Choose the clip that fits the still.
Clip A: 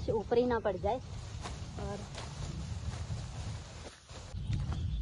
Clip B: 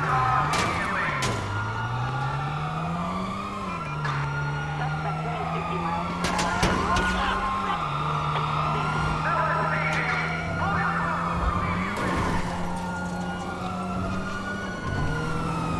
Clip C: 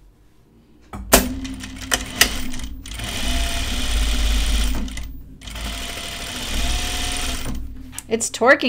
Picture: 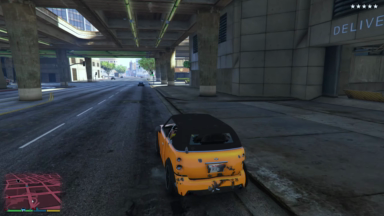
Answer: B